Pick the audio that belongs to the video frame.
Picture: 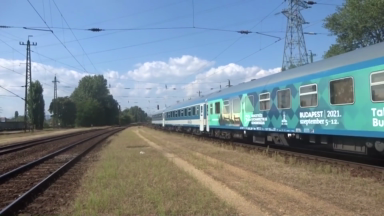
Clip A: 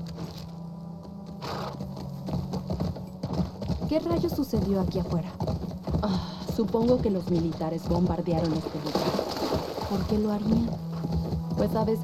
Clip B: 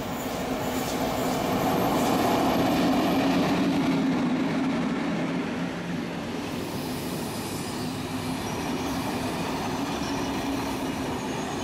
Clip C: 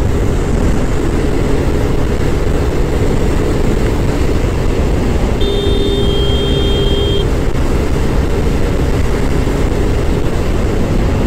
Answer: B